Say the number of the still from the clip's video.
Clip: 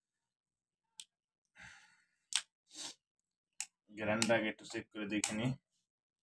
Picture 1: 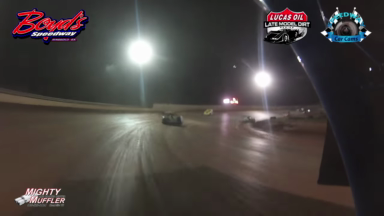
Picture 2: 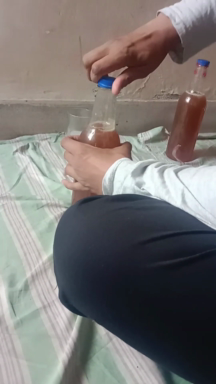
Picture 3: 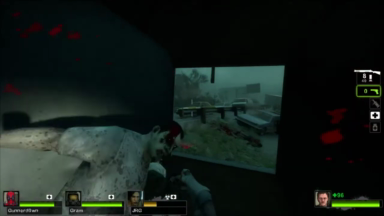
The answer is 2